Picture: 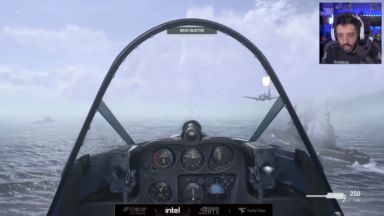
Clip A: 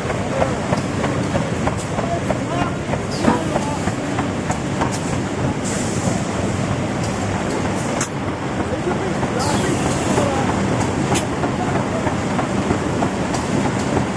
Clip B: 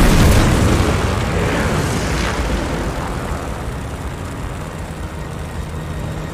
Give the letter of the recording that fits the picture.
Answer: B